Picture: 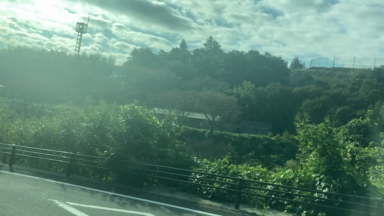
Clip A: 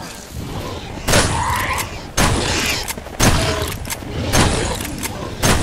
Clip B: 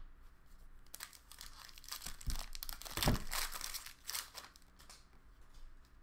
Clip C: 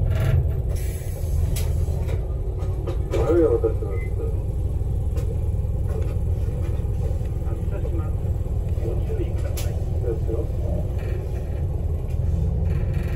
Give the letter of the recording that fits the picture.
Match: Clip C